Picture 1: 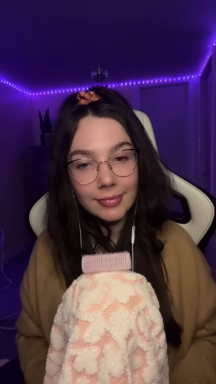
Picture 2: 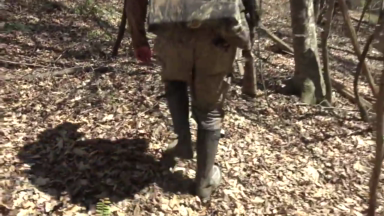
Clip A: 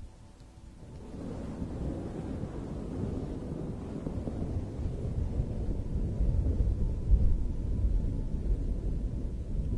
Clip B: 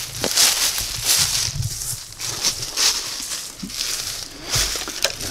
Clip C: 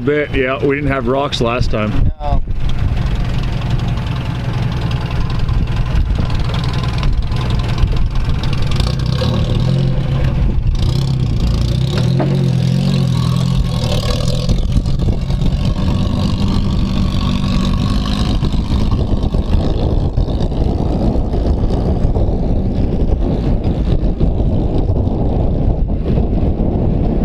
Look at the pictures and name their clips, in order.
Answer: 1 A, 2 B